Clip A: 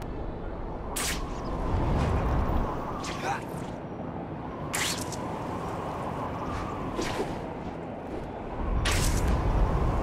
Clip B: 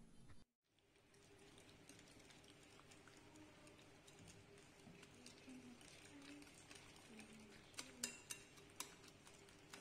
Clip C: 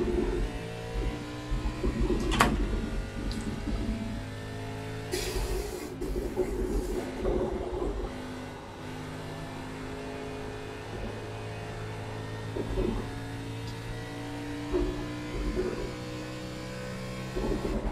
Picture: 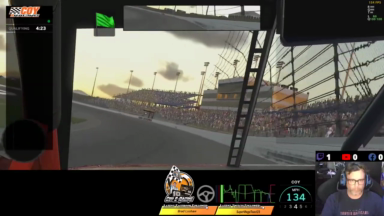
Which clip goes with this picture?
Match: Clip C